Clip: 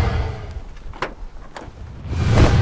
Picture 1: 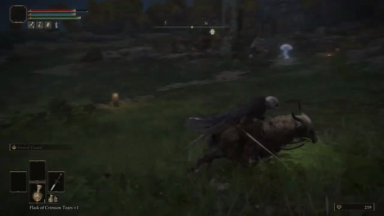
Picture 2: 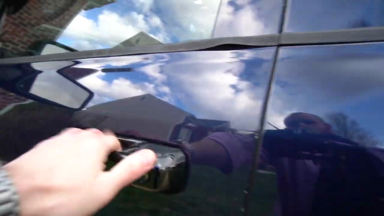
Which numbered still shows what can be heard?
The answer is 2